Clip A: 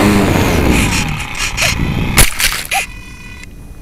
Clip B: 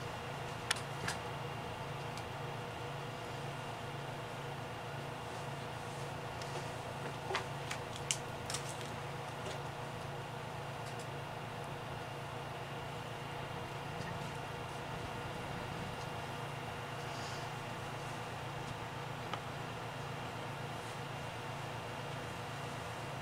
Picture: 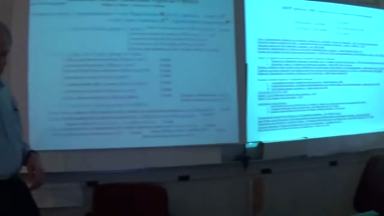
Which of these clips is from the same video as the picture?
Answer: B